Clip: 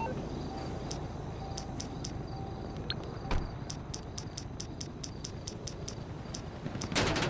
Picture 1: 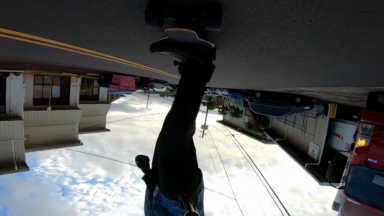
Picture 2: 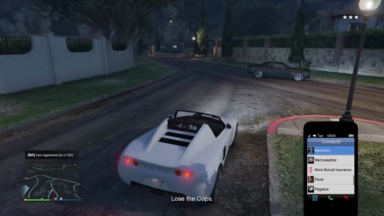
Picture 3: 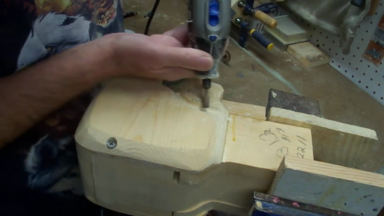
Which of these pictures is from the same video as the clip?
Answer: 2